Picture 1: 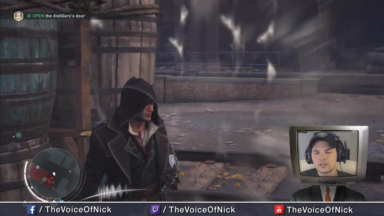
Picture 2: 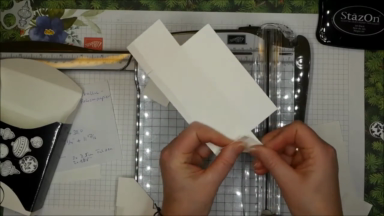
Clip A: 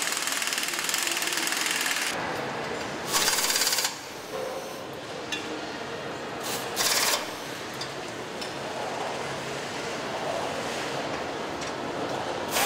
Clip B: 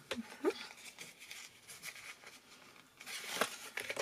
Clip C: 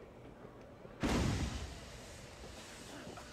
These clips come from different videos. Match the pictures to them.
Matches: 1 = C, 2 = B